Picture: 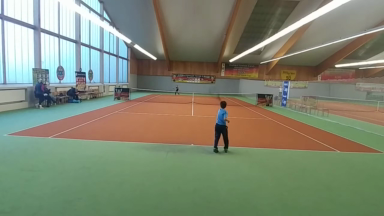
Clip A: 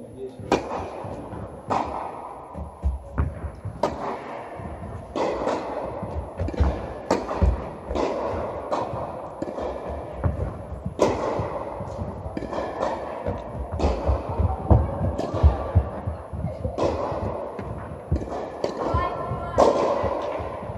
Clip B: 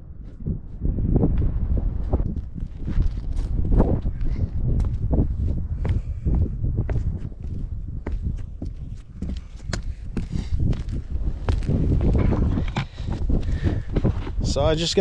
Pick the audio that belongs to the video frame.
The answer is A